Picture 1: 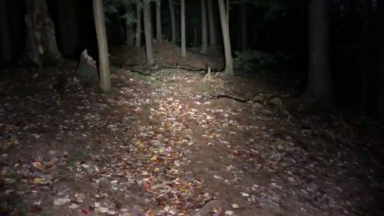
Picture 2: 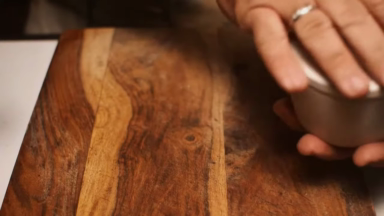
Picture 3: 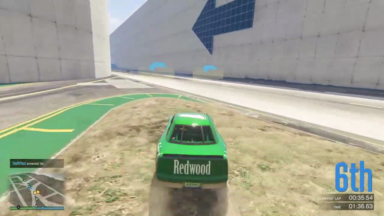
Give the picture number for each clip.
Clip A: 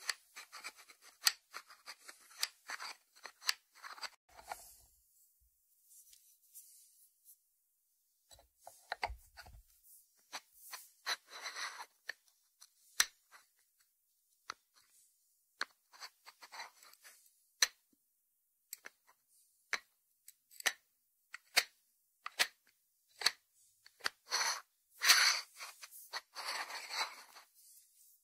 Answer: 2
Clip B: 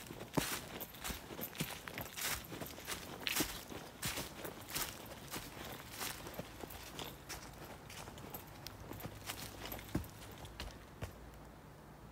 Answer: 1